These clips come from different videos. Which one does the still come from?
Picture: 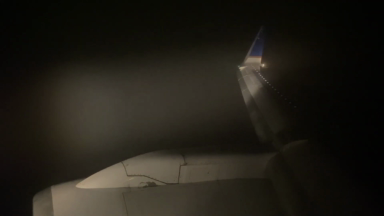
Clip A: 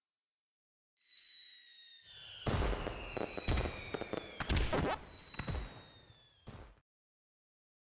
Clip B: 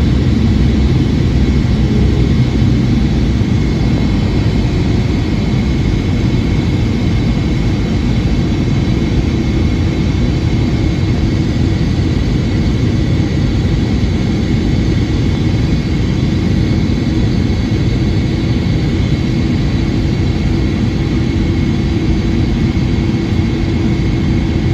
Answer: B